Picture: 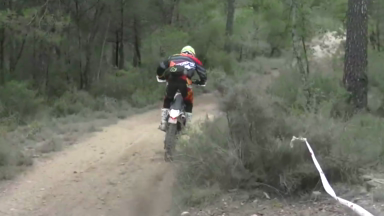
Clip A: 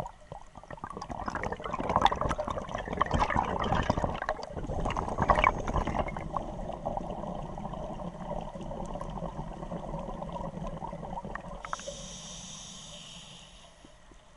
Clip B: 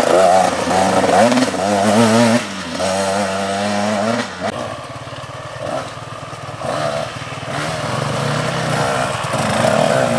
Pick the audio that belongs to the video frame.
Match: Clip B